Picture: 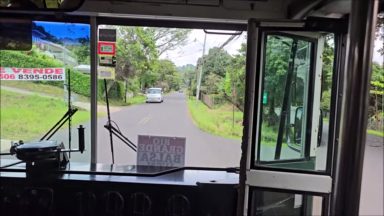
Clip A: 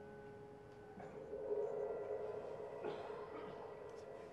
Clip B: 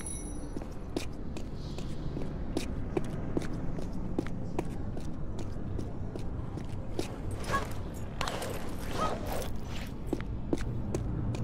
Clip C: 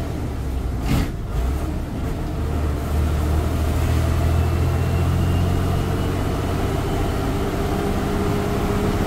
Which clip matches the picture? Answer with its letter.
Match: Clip C